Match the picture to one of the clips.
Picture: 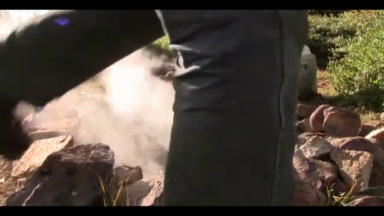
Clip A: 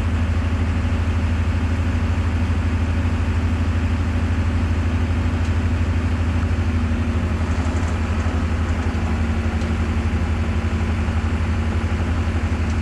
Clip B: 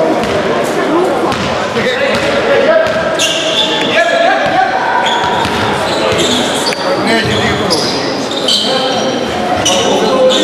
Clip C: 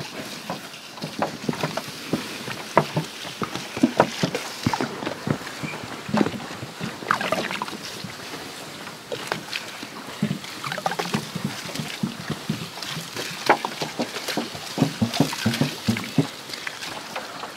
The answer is C